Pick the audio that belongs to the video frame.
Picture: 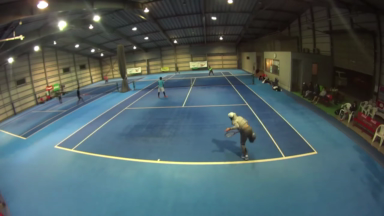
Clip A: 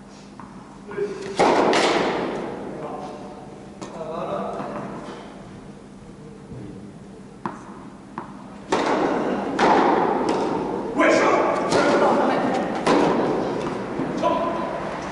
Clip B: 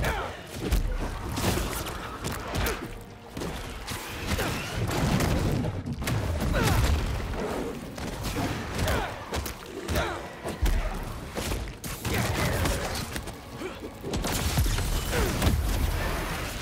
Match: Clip A